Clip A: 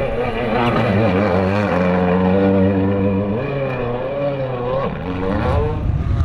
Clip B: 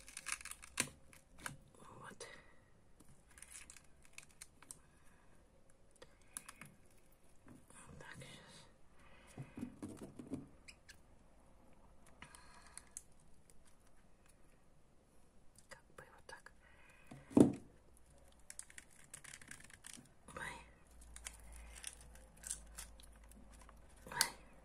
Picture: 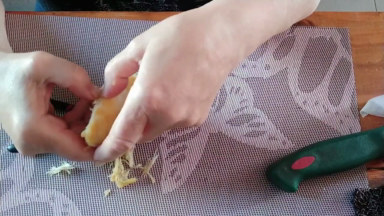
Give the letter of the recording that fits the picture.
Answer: B